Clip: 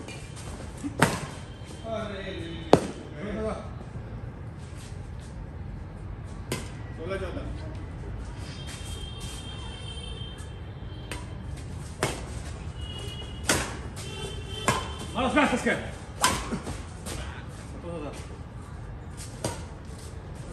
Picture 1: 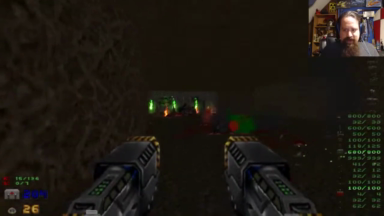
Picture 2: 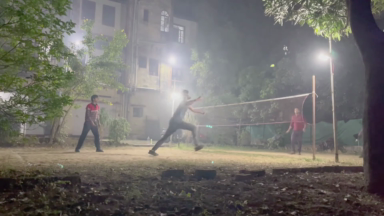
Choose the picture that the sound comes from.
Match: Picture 2